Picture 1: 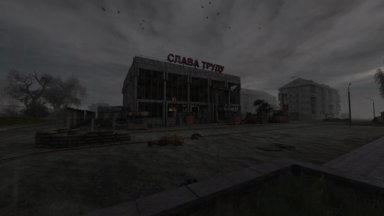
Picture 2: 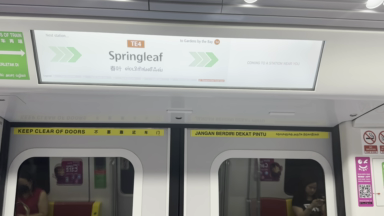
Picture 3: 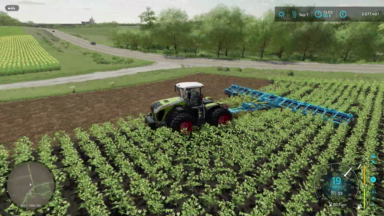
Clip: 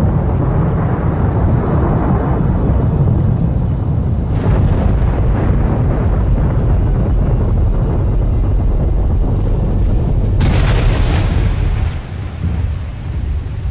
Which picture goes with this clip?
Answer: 1